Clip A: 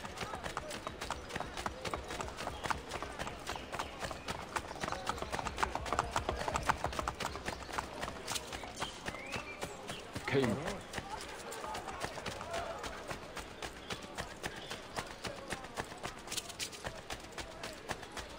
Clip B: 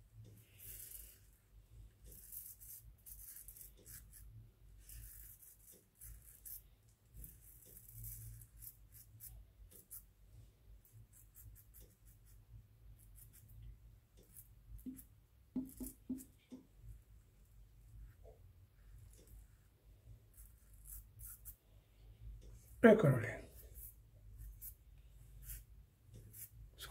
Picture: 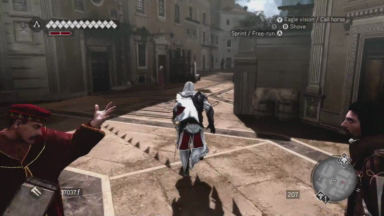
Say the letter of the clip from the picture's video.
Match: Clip A